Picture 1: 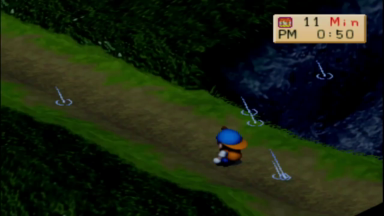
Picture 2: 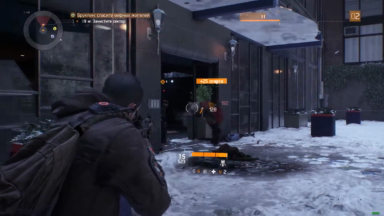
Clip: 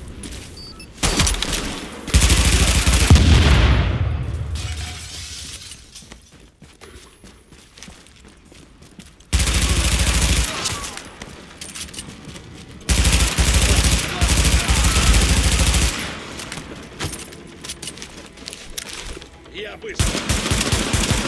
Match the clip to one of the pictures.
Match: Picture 2